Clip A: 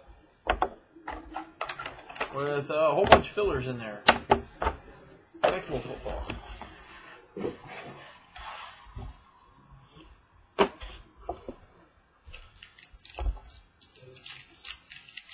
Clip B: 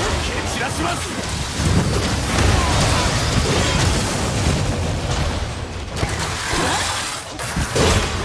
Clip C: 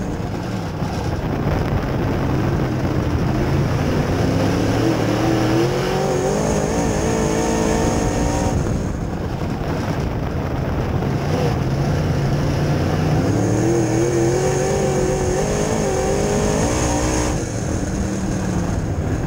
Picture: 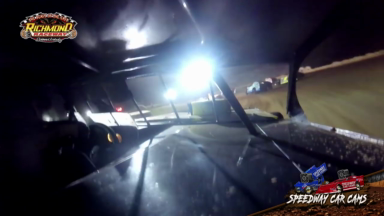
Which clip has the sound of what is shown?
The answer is C